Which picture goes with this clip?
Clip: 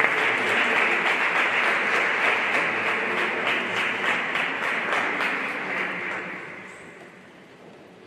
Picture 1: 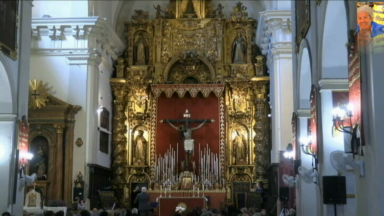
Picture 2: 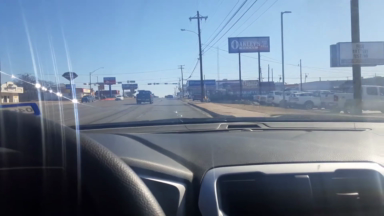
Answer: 1